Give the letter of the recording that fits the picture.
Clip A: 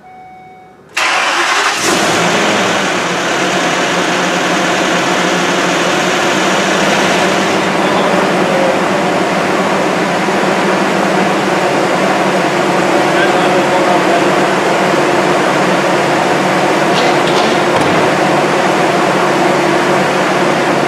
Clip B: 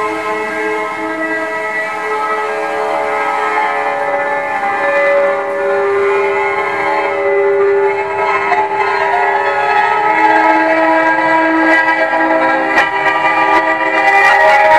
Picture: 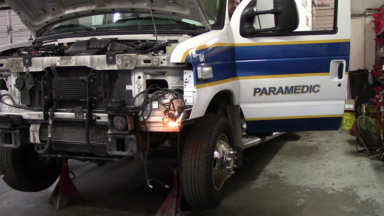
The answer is A